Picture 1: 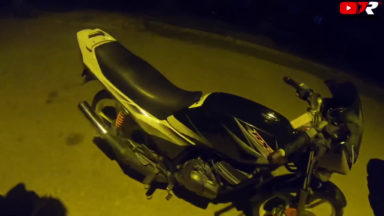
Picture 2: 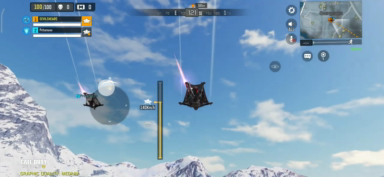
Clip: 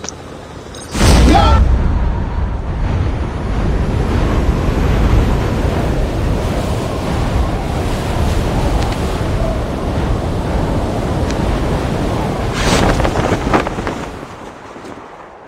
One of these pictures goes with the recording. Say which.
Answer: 2